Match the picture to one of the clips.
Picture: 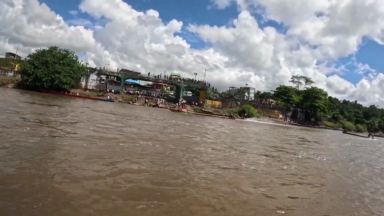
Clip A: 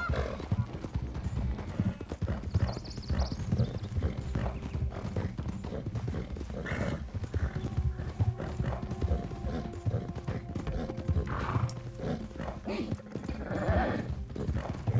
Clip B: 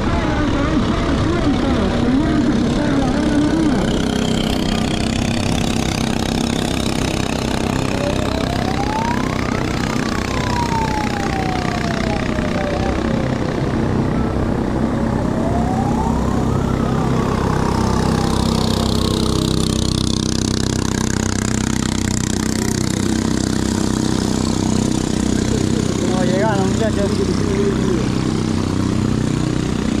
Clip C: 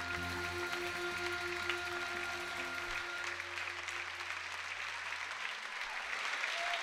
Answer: B